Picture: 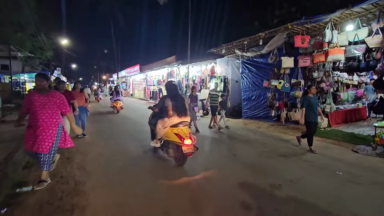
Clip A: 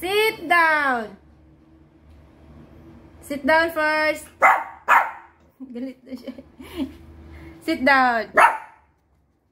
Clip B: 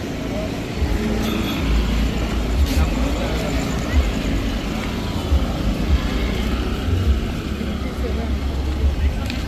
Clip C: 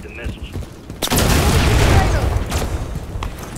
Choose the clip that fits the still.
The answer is B